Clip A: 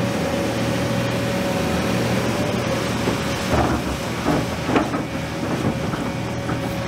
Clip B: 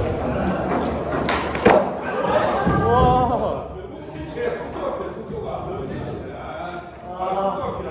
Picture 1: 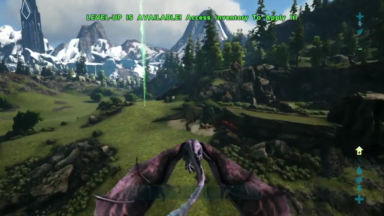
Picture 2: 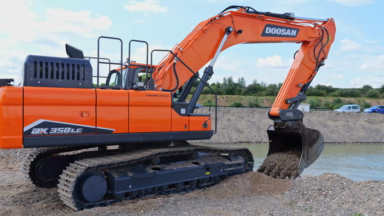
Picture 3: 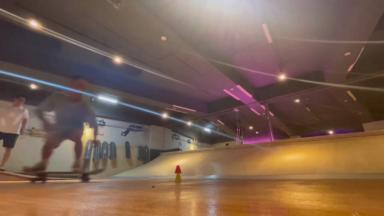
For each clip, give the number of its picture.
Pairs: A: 2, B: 3